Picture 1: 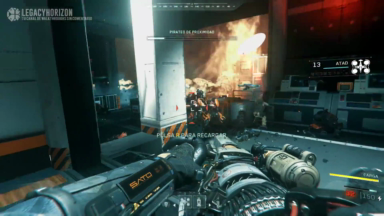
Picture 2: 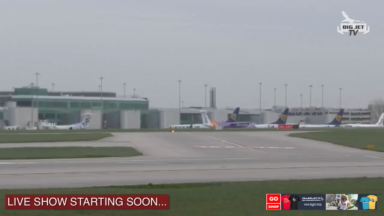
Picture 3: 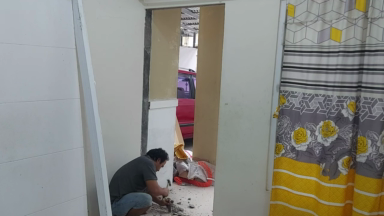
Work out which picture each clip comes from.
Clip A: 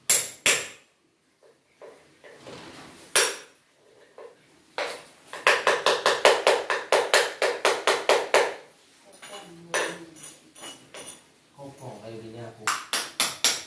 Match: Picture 3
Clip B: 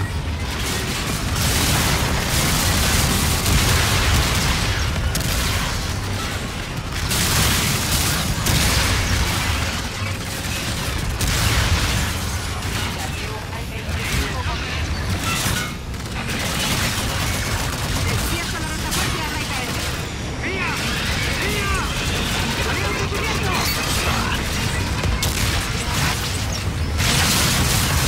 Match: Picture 1